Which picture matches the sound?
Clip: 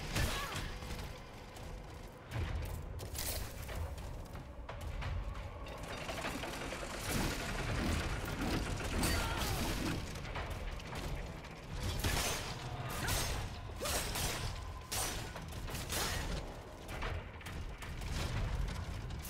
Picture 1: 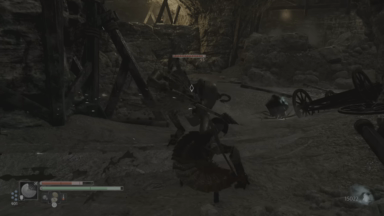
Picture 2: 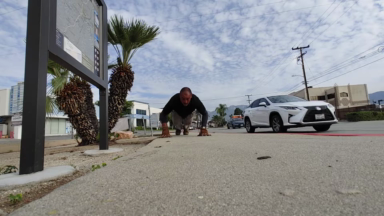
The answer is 1